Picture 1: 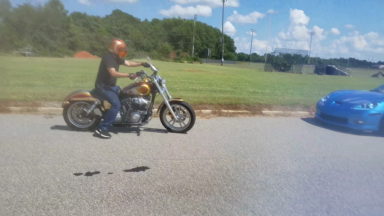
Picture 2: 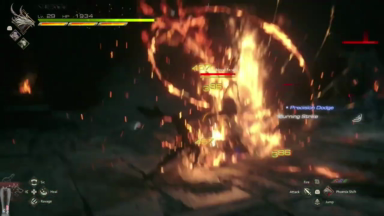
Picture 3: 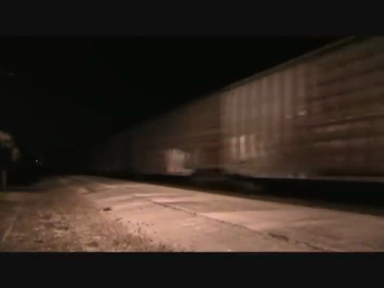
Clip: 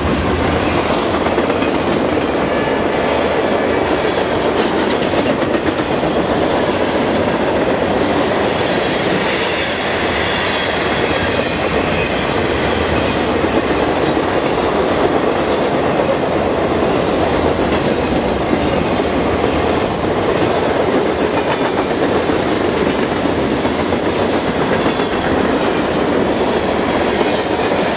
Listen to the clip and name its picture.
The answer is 3